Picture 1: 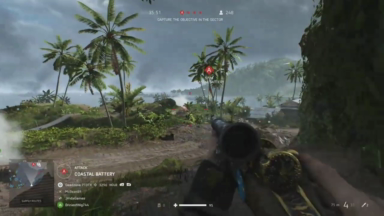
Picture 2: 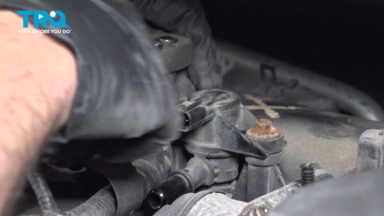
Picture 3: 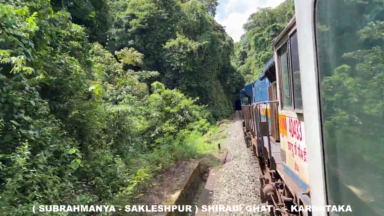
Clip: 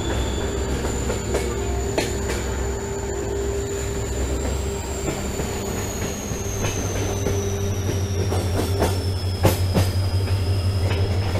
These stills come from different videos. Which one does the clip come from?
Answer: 3